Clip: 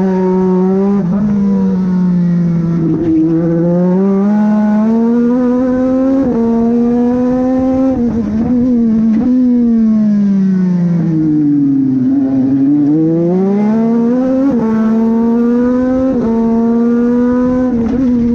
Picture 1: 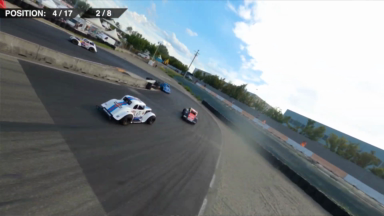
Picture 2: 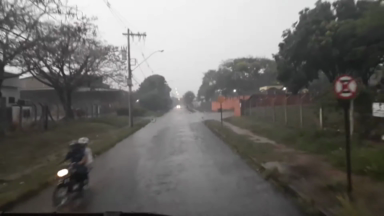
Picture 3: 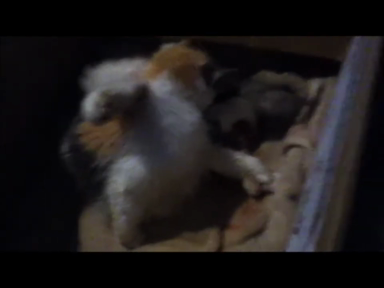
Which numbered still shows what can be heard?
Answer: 1